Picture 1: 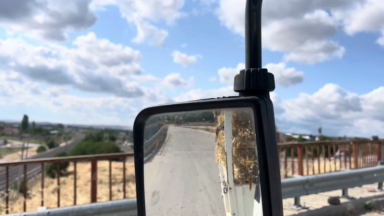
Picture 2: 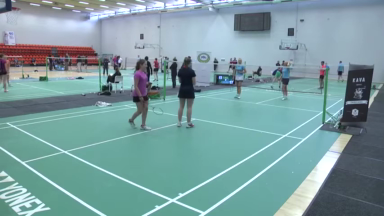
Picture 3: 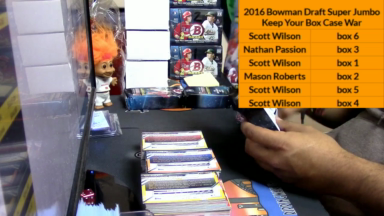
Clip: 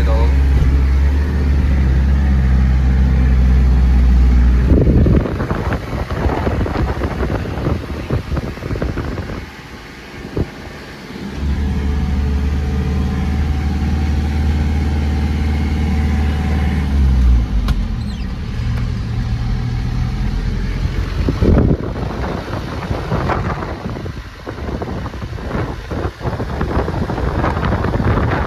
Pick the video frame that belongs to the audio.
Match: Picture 1